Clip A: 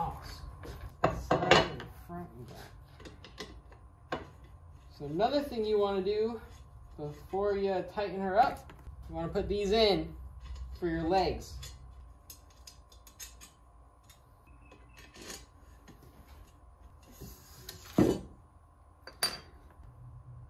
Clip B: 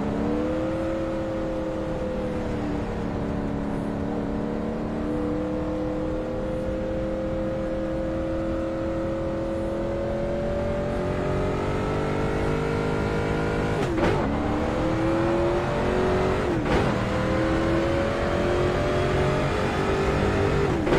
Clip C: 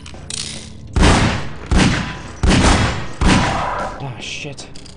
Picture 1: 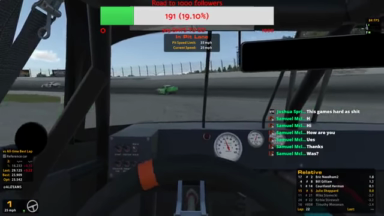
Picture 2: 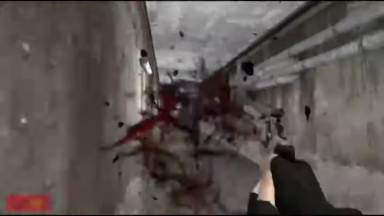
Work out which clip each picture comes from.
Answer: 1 B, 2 C